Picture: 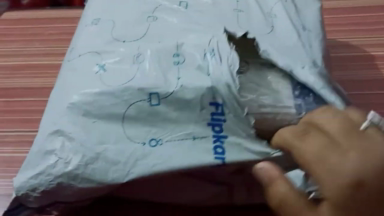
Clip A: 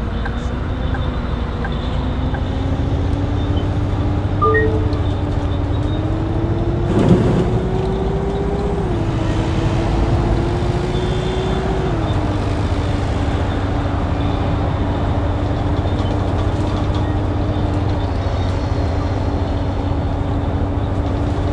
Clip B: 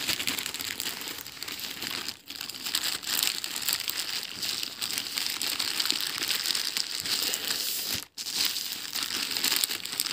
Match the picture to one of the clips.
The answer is B